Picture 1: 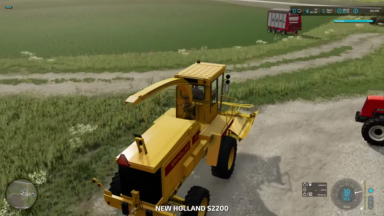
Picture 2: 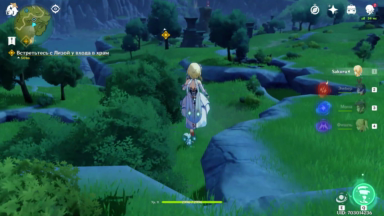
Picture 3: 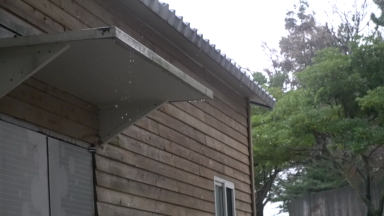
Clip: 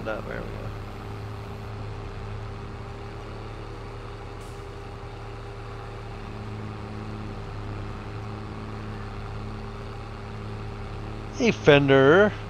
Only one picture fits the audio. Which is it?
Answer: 1